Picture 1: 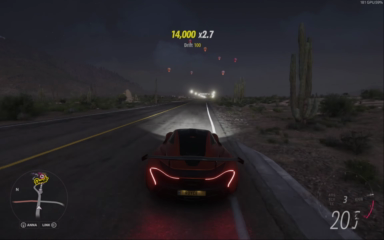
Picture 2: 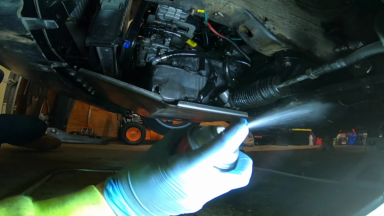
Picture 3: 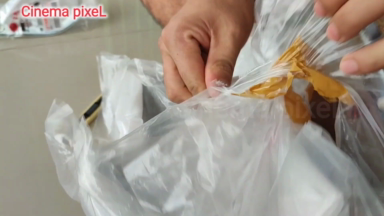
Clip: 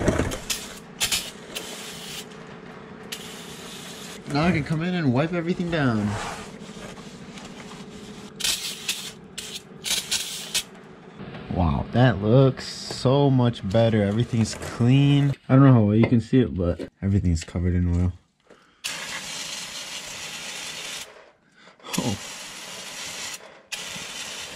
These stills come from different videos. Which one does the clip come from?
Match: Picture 2